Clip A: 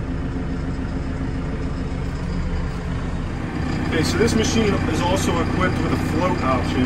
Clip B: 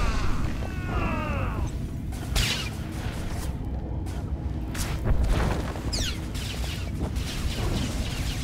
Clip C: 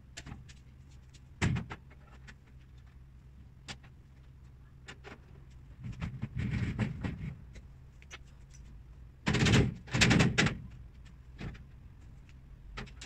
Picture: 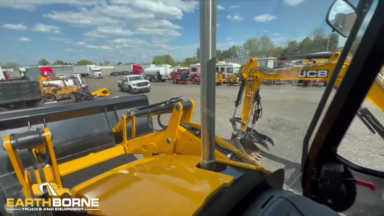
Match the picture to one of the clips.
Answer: A